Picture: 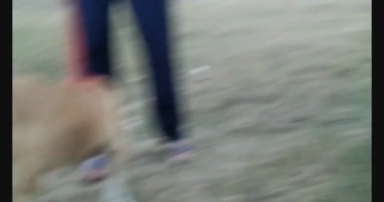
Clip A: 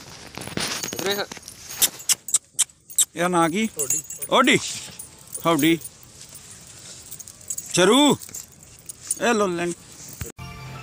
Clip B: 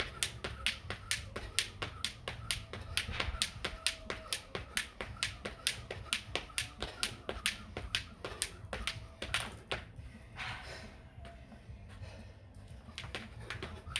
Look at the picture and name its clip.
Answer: A